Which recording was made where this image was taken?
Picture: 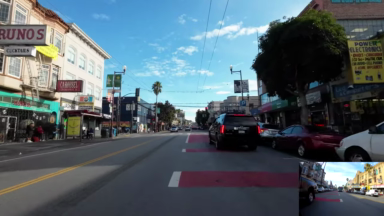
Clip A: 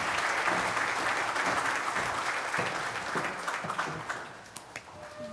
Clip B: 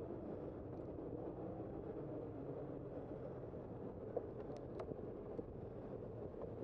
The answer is B